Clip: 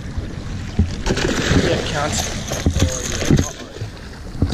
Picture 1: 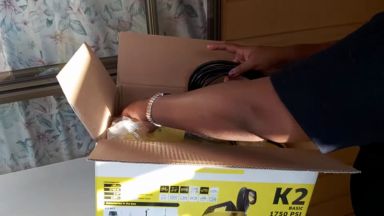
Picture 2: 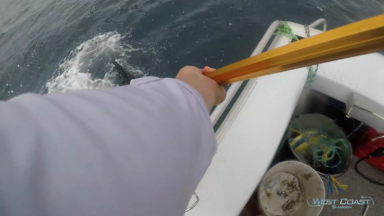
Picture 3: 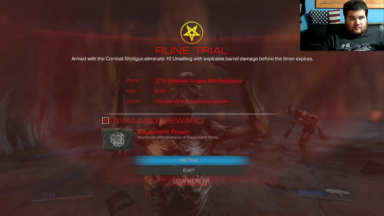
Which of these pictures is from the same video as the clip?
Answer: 2